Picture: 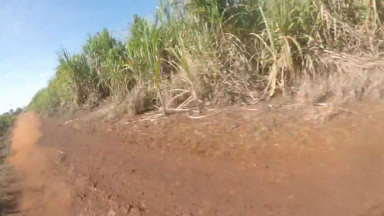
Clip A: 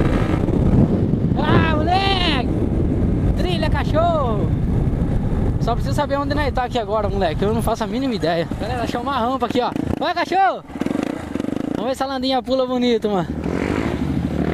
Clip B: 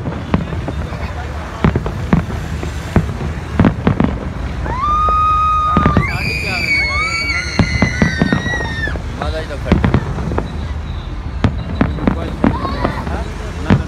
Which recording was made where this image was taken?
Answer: A